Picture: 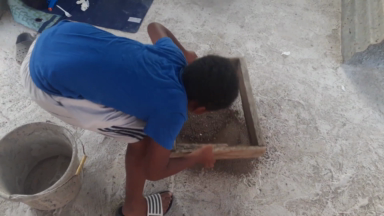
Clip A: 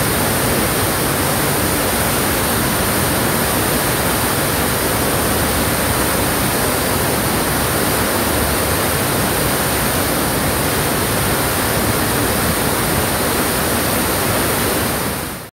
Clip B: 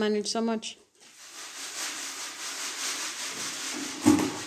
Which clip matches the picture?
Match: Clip B